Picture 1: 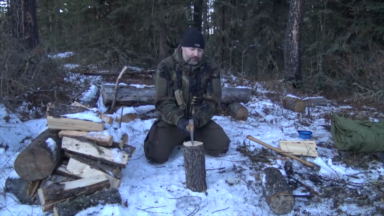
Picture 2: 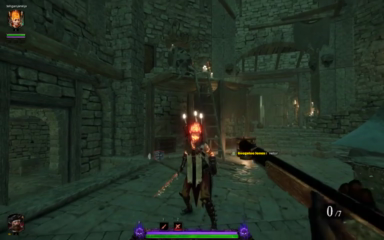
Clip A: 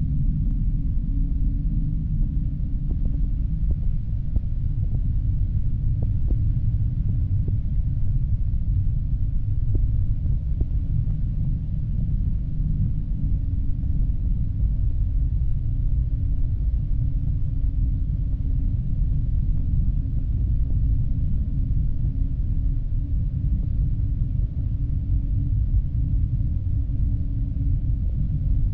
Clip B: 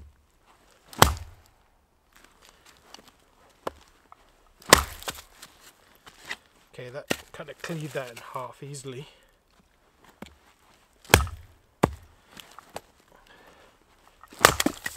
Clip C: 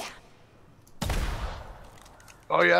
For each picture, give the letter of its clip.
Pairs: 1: B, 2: C